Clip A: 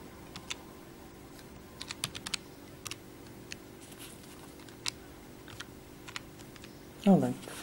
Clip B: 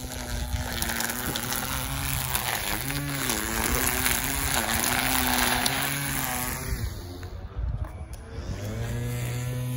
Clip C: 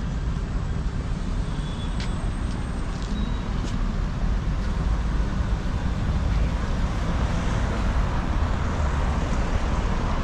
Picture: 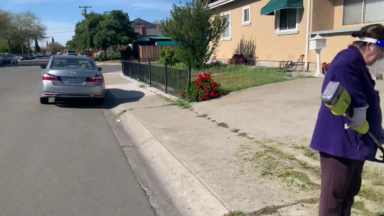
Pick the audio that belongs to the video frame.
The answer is B